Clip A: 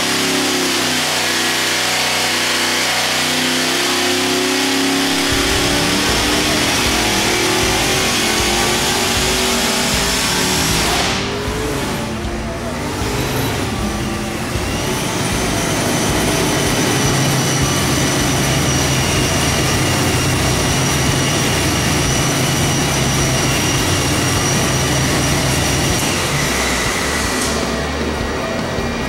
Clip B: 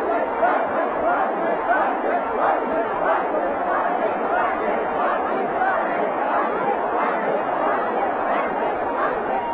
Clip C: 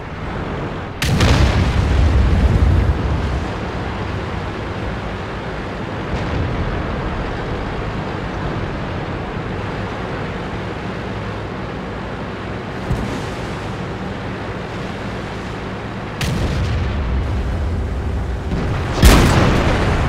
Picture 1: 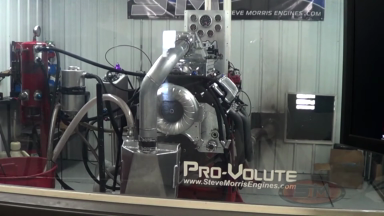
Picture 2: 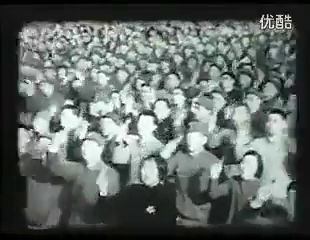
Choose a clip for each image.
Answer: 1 A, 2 B